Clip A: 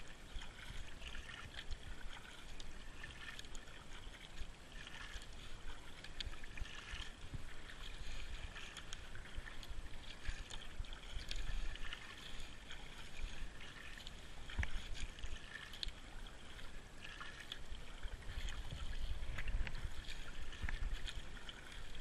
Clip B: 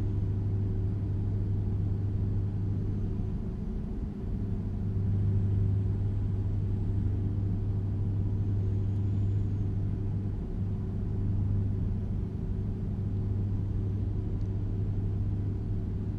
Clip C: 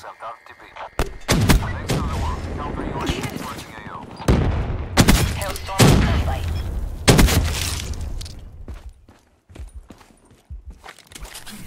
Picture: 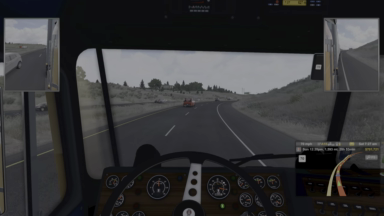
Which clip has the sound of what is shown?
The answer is B